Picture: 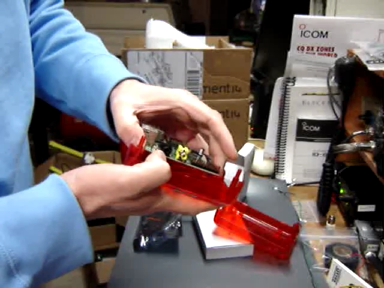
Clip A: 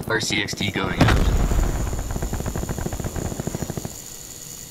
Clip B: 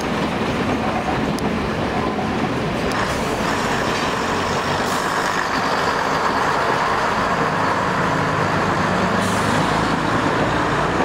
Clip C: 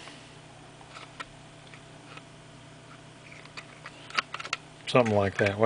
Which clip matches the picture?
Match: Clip C